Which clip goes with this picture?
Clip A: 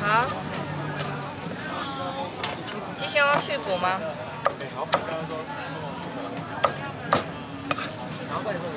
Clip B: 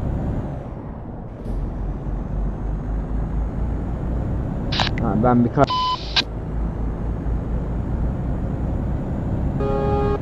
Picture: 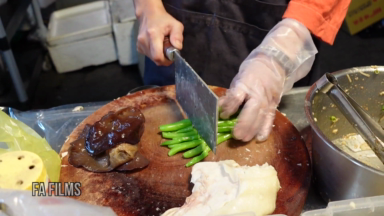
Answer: A